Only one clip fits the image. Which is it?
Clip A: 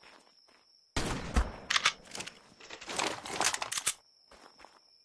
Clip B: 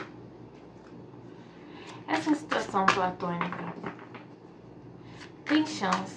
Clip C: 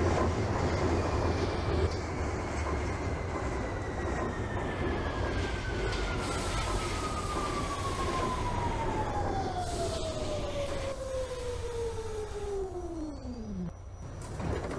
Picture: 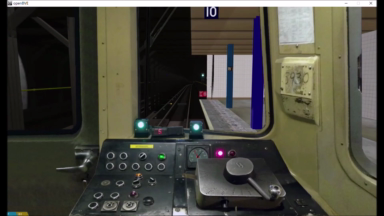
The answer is C